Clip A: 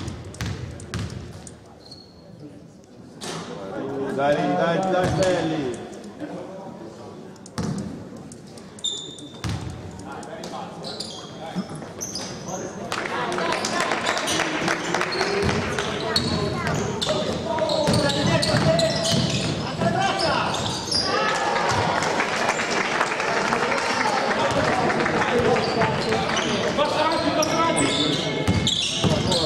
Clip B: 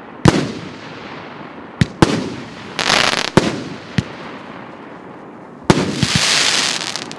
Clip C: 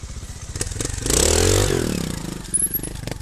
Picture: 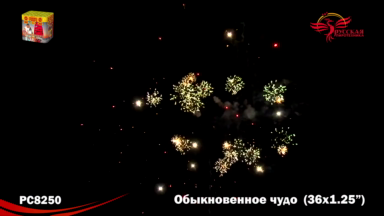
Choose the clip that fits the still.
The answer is B